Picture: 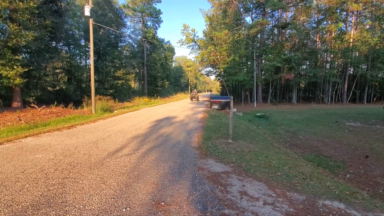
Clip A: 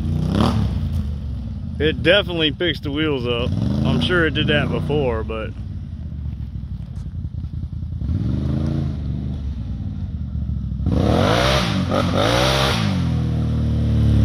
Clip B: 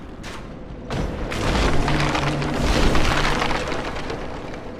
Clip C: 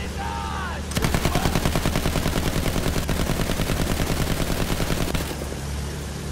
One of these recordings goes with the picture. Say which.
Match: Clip A